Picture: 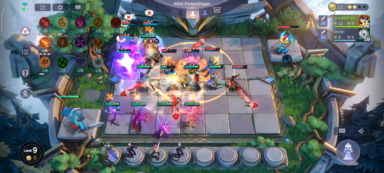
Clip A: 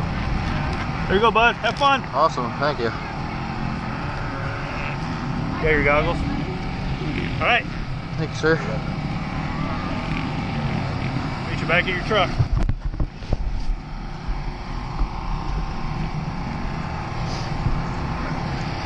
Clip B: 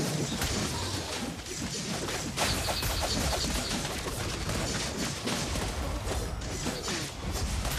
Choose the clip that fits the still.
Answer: B